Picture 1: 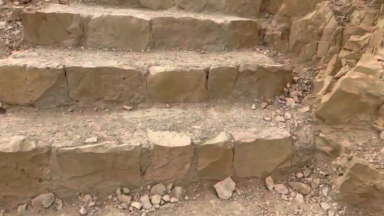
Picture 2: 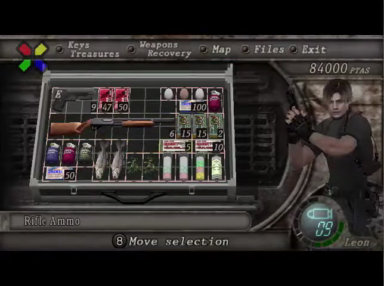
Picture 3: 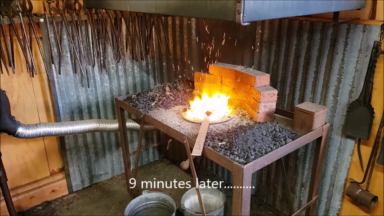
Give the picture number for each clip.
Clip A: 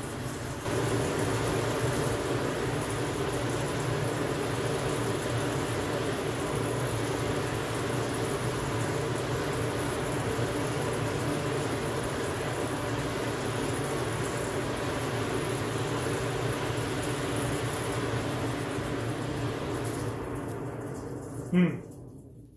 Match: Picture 3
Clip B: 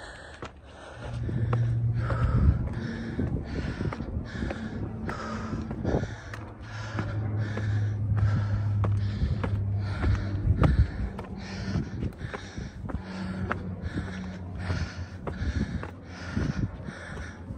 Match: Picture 1